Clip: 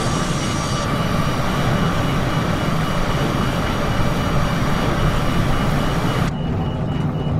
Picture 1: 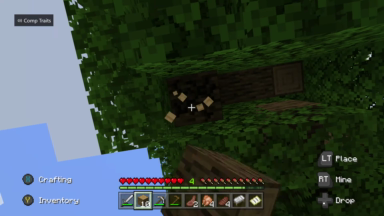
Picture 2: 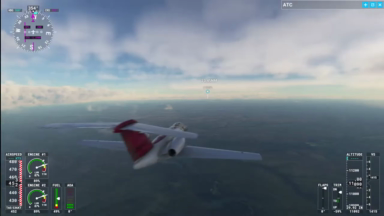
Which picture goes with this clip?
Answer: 2